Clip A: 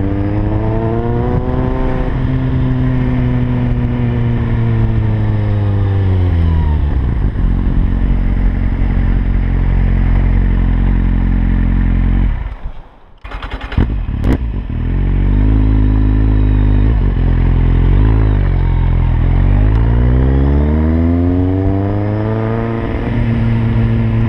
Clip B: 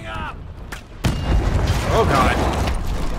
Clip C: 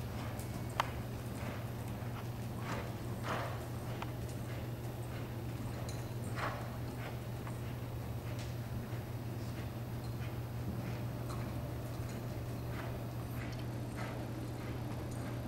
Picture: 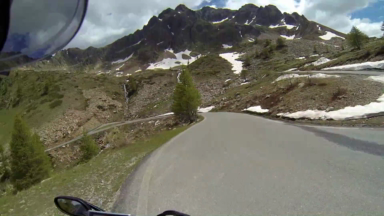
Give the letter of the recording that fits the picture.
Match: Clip A